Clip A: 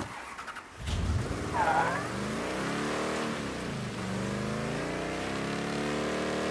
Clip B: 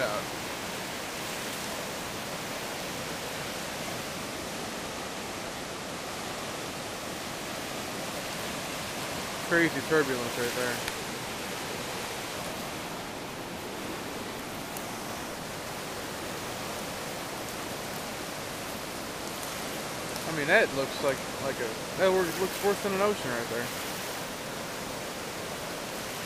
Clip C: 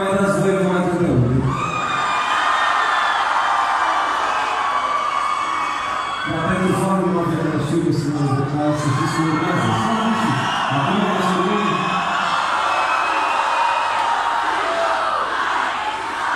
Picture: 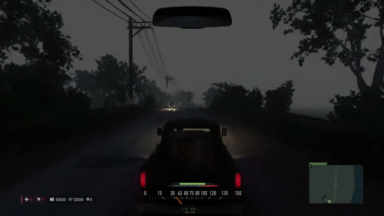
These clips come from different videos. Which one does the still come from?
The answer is A